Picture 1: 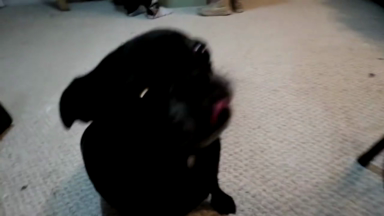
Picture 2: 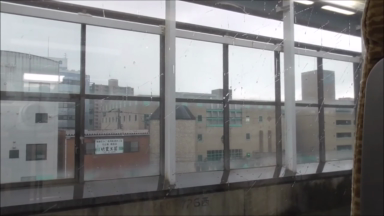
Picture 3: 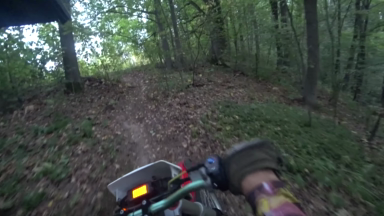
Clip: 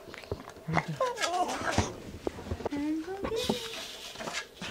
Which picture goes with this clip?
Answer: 1